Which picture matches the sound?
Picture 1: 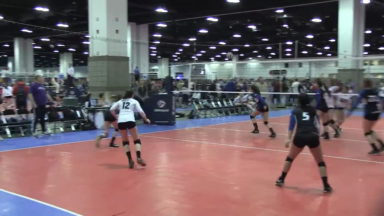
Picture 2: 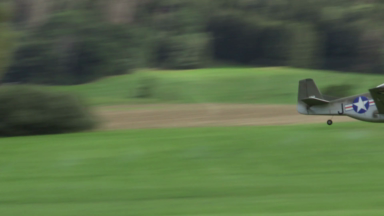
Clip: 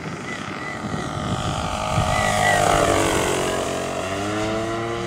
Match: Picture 2